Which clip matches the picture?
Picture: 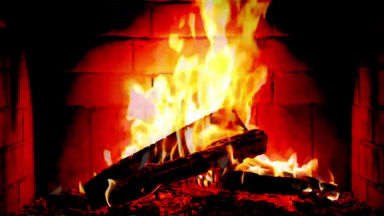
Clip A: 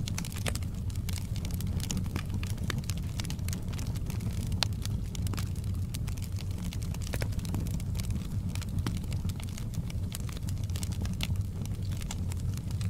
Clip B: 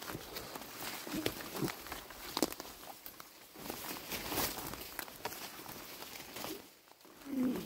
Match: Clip A